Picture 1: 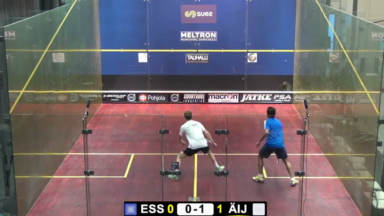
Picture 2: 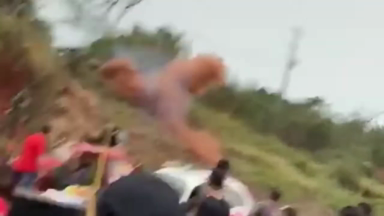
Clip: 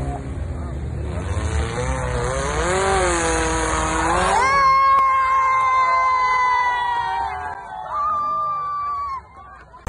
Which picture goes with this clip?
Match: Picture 2